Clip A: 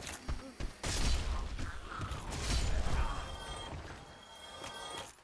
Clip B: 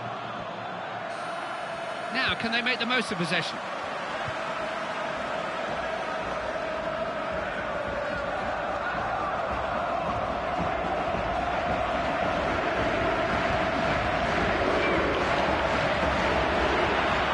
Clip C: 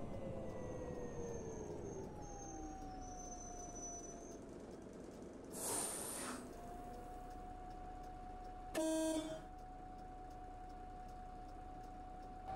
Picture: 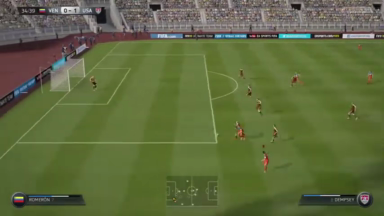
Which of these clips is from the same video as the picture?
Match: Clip B